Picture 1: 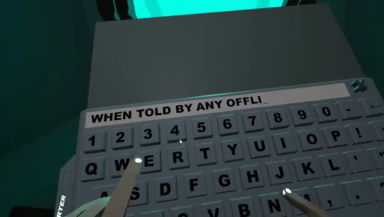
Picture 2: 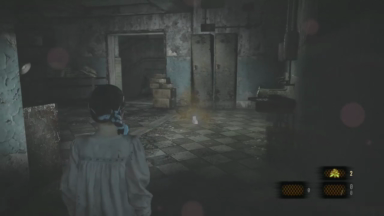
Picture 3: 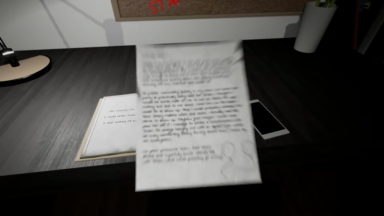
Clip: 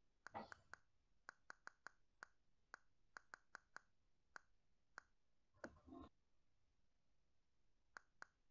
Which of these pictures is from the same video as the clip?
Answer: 1